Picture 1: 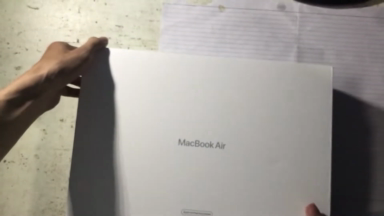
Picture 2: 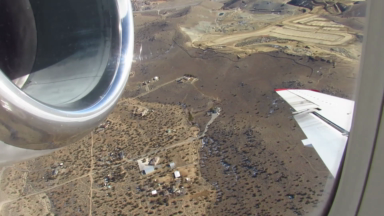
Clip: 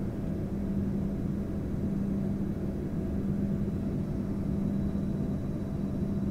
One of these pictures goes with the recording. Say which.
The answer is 2